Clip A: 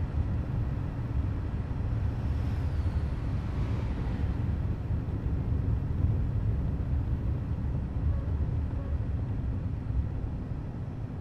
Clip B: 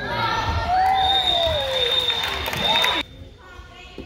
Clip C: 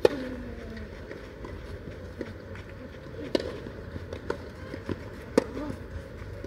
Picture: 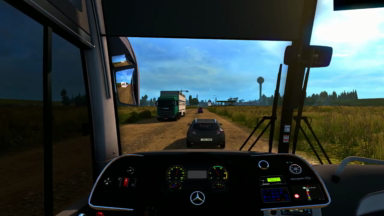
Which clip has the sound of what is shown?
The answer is A